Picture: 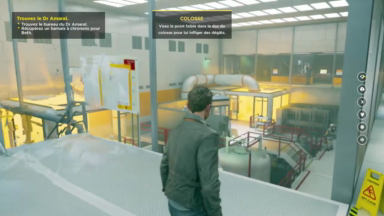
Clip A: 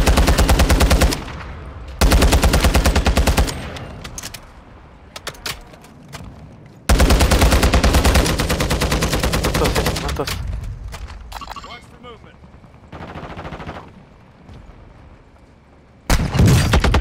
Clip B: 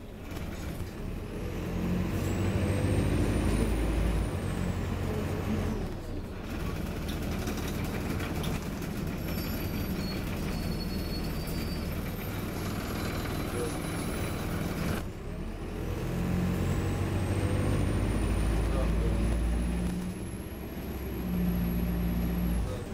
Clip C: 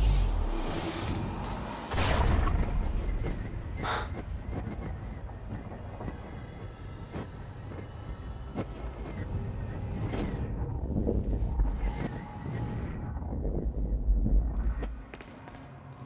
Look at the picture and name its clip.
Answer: C